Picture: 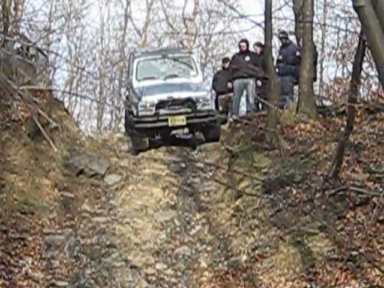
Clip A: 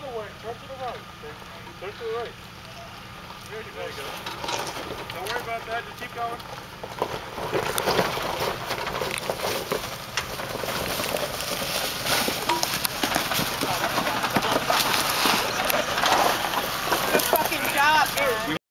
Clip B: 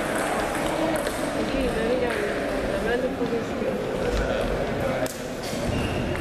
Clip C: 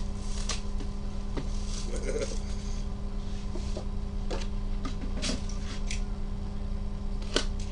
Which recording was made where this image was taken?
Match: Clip A